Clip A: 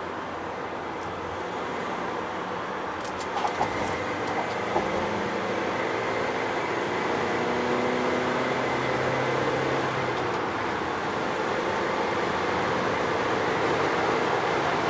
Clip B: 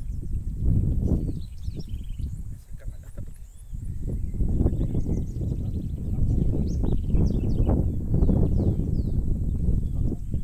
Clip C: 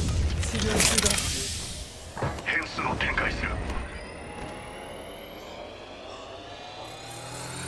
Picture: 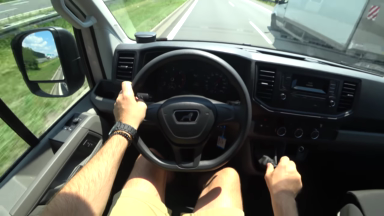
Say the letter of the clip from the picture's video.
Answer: A